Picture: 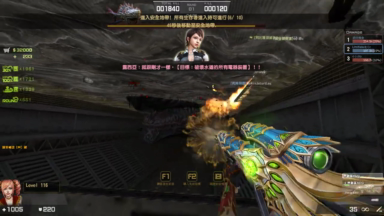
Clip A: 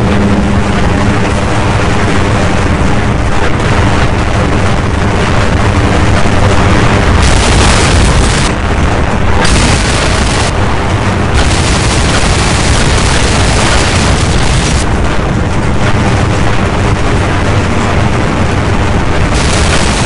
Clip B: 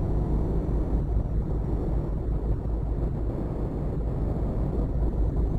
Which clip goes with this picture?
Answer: A